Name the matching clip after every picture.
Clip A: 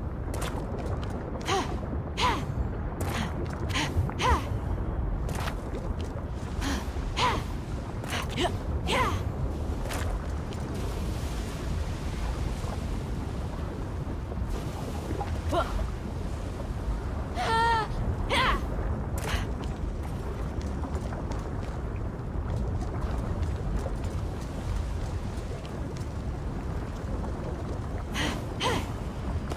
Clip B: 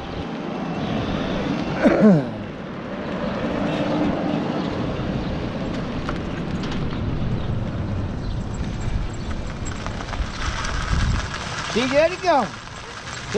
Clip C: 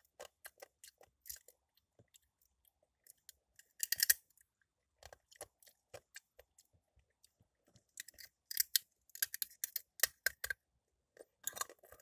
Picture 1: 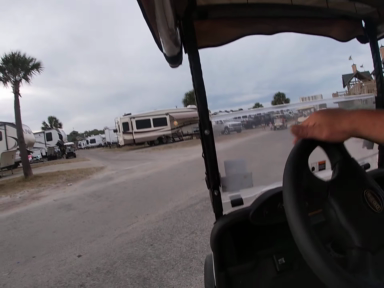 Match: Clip B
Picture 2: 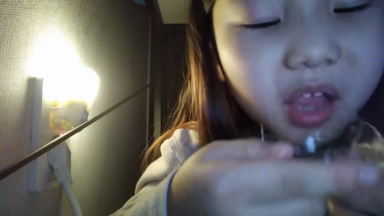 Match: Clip C